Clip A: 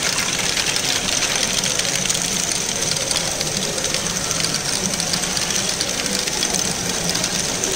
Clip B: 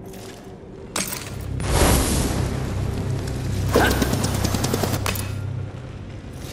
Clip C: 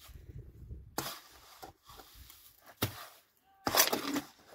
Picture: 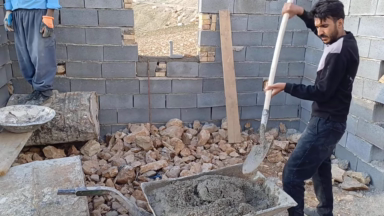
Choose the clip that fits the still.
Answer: C